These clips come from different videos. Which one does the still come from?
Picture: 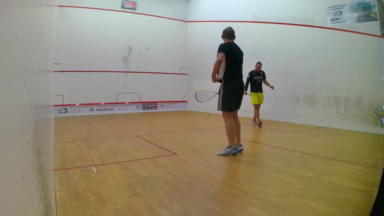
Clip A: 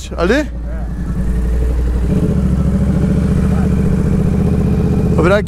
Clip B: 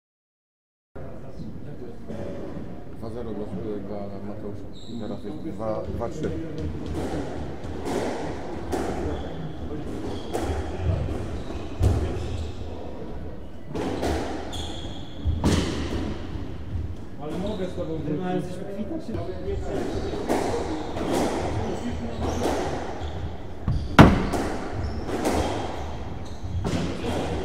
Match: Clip B